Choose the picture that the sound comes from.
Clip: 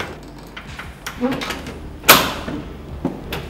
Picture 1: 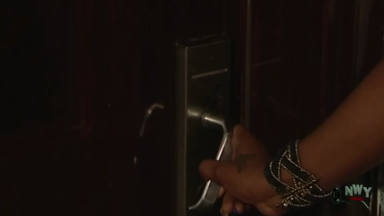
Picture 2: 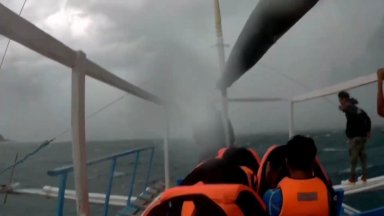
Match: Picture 1